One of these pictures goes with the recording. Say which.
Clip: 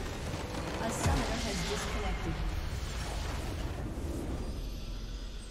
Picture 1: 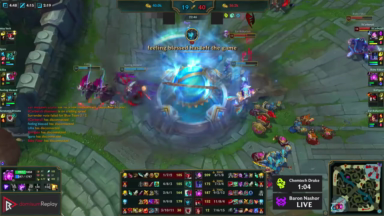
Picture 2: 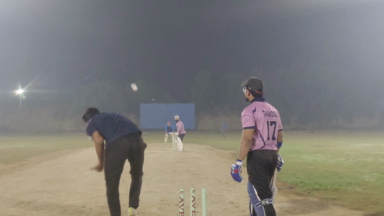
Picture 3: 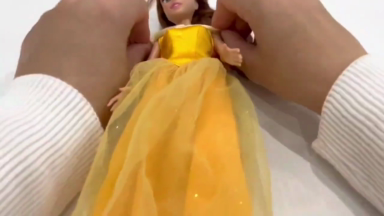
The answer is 1